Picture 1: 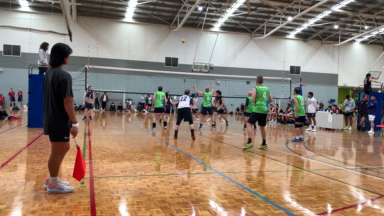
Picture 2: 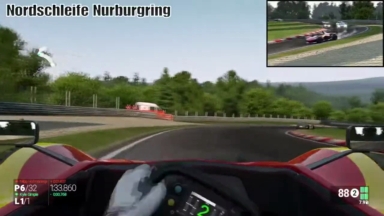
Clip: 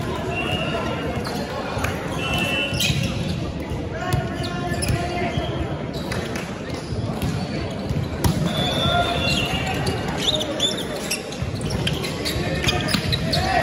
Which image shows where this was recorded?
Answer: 1